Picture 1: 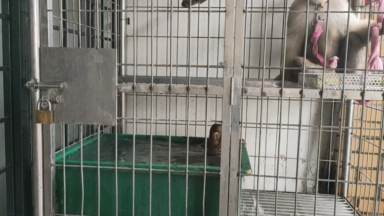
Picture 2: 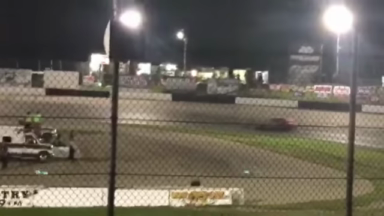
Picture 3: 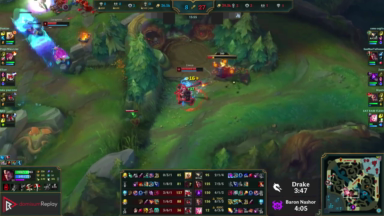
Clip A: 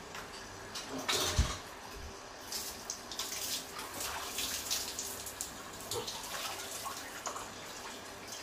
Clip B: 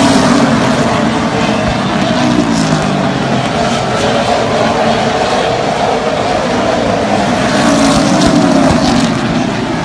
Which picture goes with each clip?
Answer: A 1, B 2